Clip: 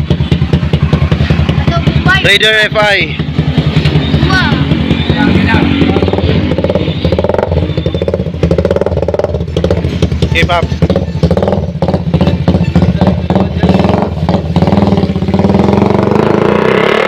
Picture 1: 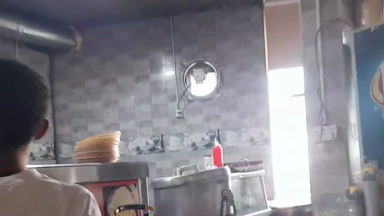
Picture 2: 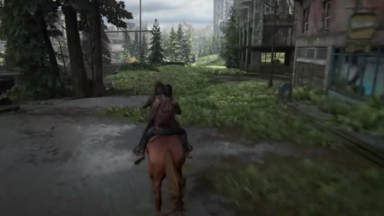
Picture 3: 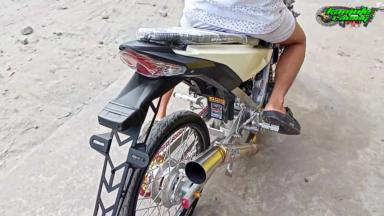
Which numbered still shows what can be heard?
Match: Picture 3